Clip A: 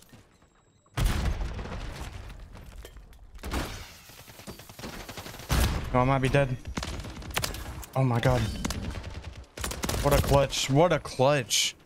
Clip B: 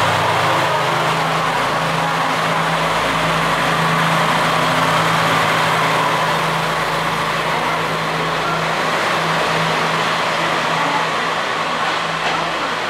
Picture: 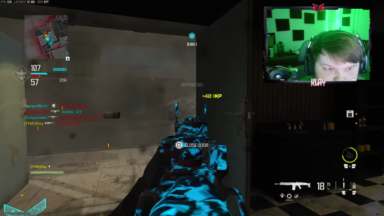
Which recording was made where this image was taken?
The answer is A